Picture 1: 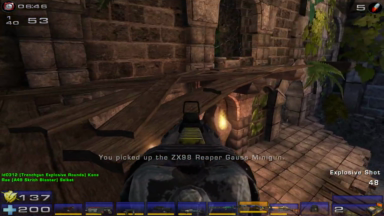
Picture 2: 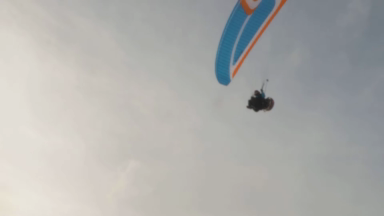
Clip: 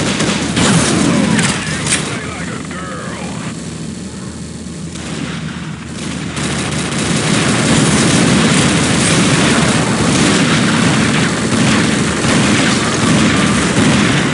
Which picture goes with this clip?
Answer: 1